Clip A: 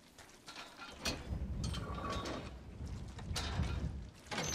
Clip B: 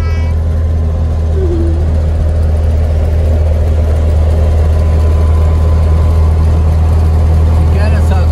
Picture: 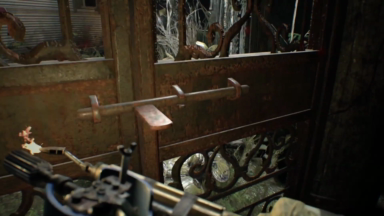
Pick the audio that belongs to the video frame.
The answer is A